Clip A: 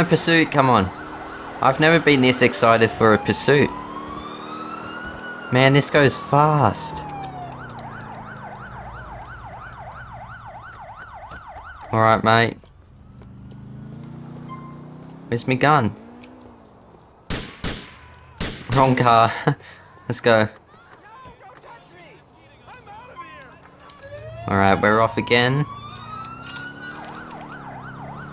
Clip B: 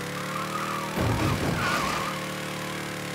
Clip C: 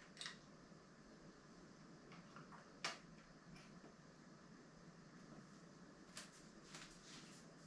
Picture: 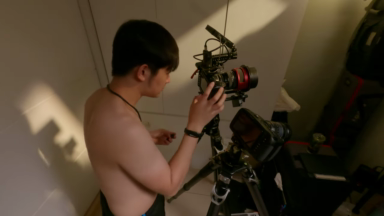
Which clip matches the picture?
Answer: C